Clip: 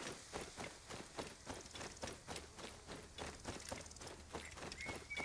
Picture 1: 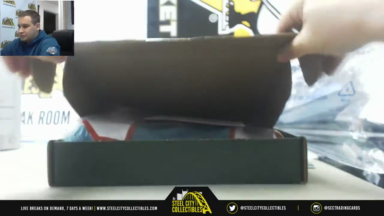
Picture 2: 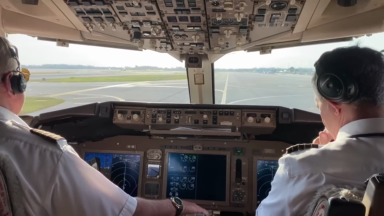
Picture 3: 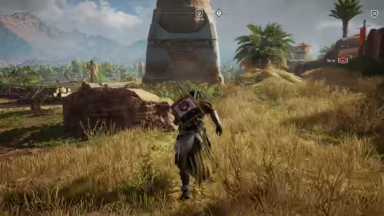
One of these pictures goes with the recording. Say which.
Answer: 3